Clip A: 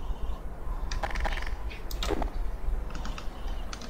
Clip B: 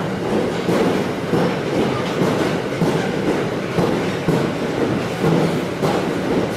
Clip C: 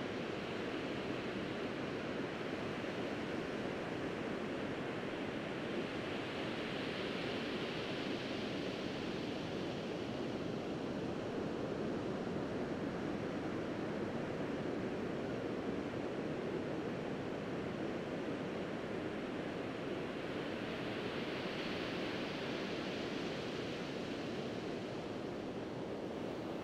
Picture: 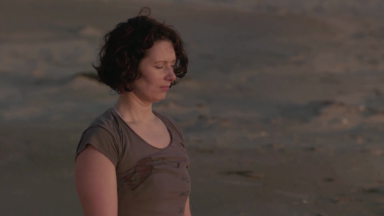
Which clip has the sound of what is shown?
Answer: C